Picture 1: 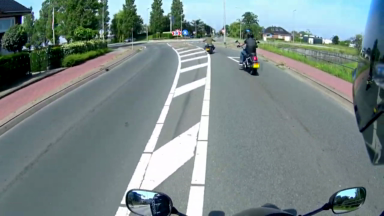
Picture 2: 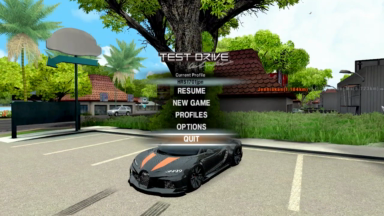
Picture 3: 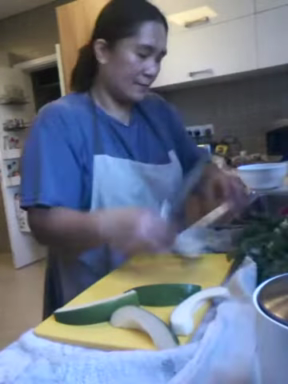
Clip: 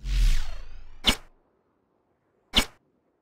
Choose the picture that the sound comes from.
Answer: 2